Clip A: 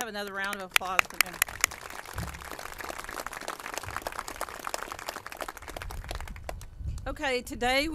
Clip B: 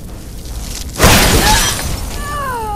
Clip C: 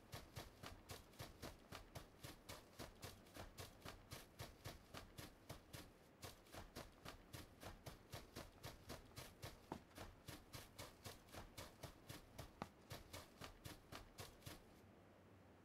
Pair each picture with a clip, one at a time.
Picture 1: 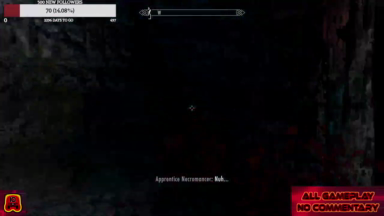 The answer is B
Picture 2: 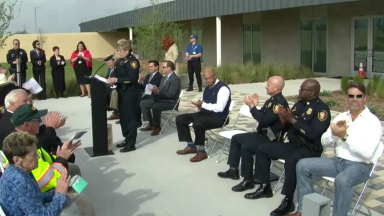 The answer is A